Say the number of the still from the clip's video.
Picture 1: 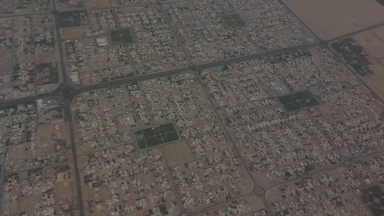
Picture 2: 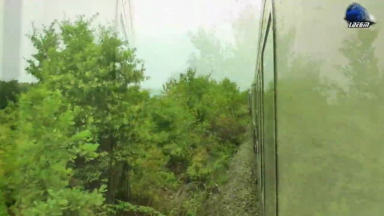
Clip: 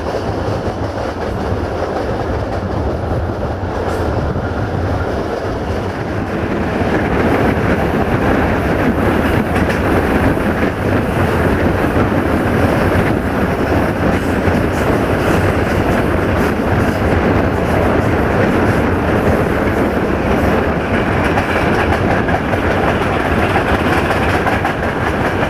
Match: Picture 2